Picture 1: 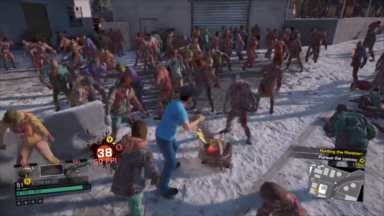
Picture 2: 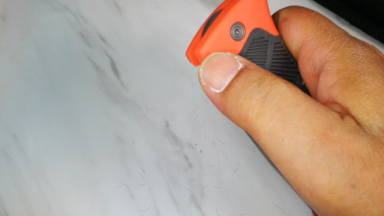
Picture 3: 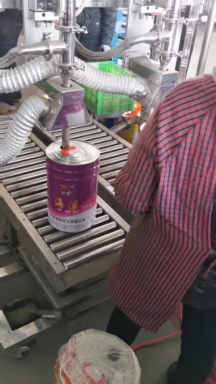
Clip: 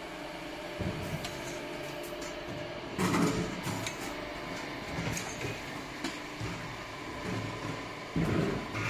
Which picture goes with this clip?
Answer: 3